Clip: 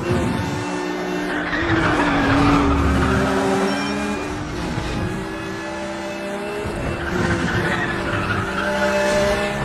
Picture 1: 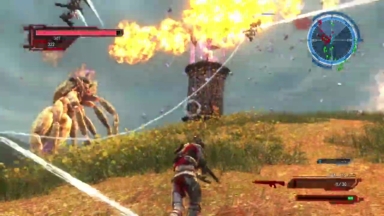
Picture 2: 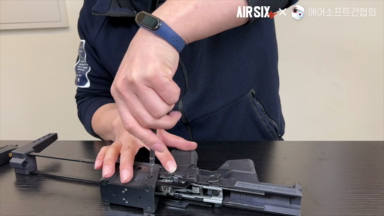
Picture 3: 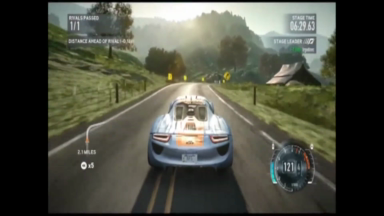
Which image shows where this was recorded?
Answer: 3